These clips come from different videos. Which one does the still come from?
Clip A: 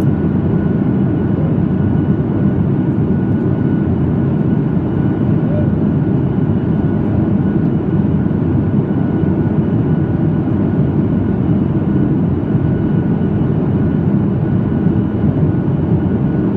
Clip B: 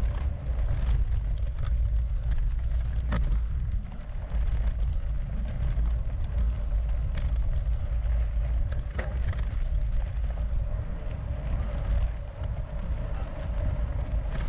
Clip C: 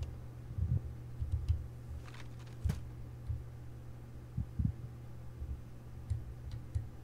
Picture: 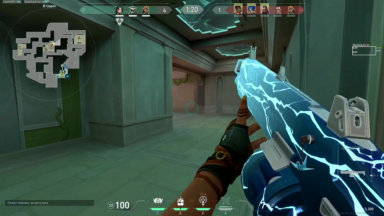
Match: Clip C